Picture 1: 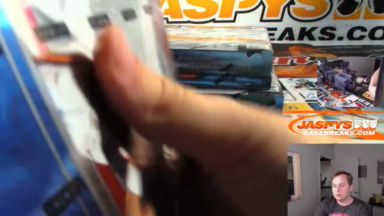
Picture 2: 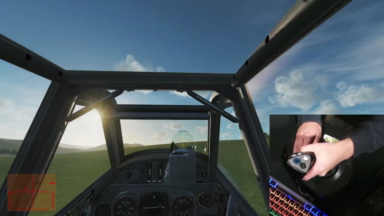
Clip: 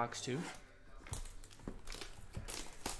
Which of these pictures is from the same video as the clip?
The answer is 1